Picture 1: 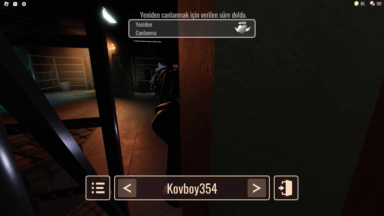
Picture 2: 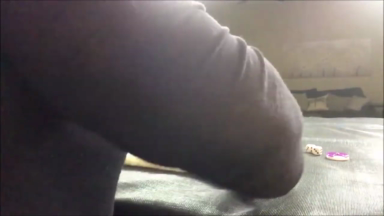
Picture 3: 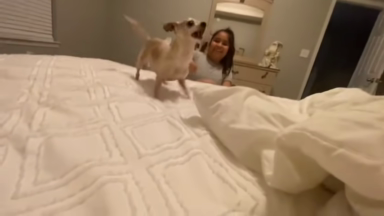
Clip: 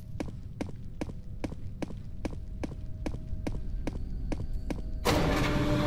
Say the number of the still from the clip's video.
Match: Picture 1